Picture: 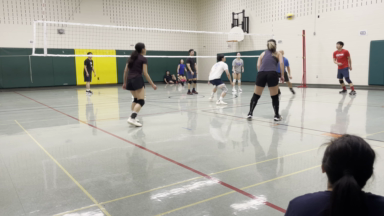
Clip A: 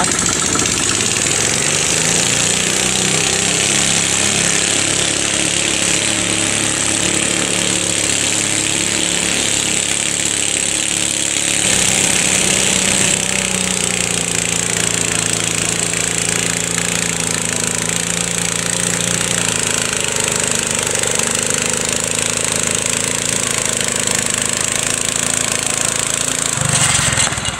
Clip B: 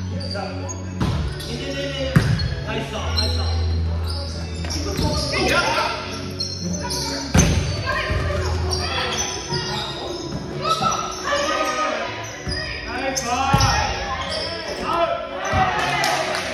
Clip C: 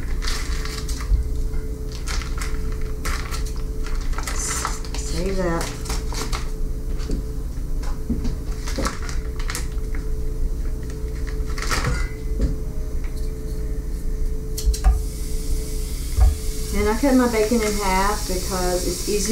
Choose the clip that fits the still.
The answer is B